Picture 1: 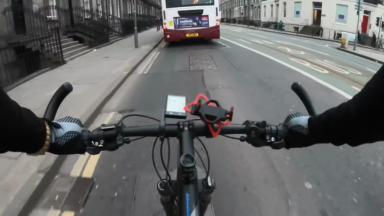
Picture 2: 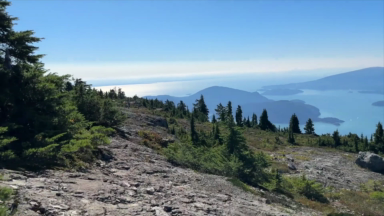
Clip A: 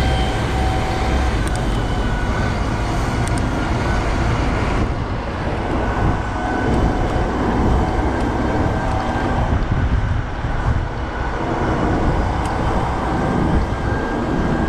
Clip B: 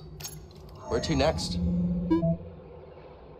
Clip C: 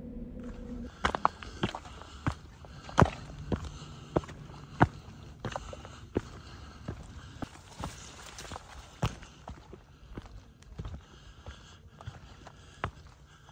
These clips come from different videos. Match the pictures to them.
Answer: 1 A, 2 C